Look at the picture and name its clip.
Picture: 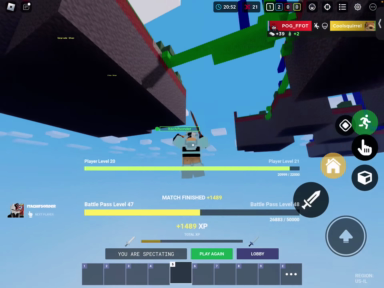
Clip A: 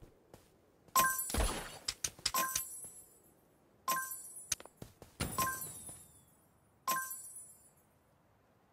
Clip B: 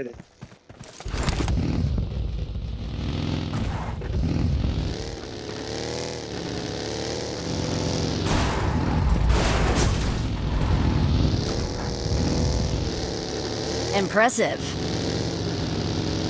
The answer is A